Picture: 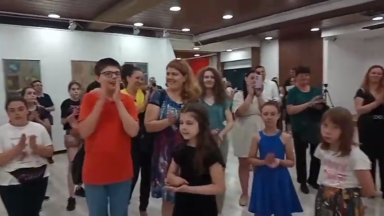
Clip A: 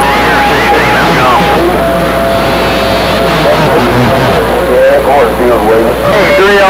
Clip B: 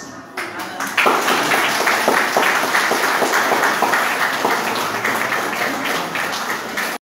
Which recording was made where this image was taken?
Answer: B